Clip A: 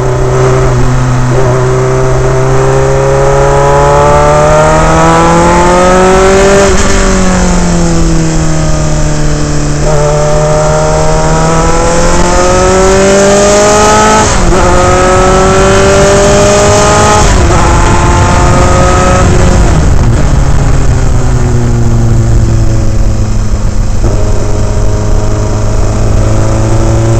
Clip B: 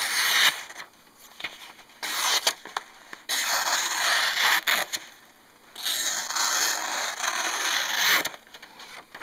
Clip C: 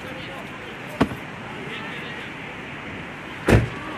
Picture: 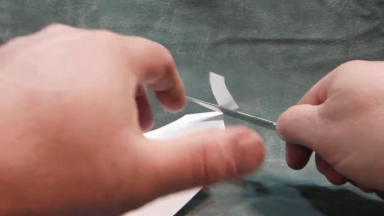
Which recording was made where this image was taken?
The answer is B